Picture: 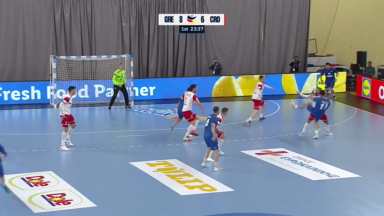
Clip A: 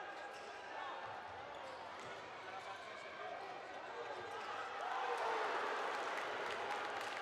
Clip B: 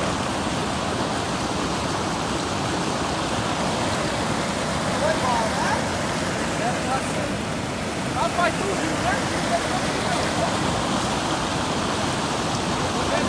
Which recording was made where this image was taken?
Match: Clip A